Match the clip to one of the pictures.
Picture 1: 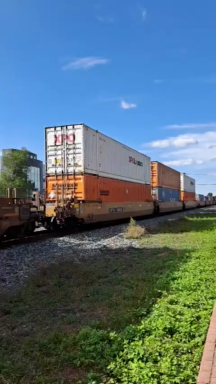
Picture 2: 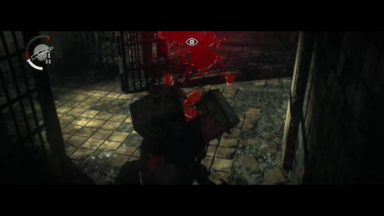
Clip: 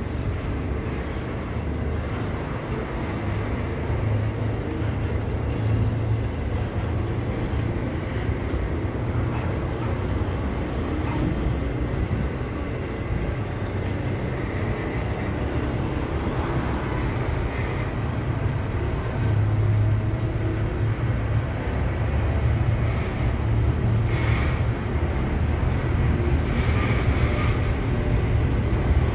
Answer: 1